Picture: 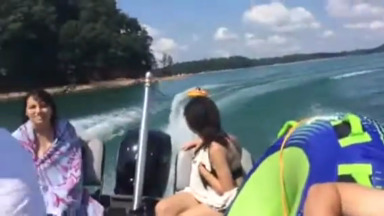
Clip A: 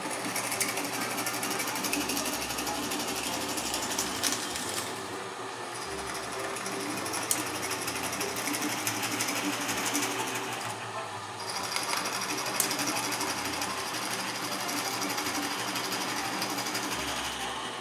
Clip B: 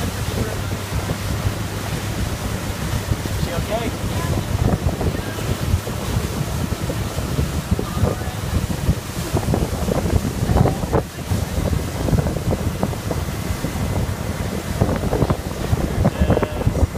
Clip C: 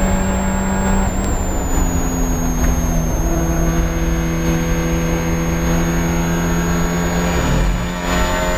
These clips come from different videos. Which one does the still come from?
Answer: B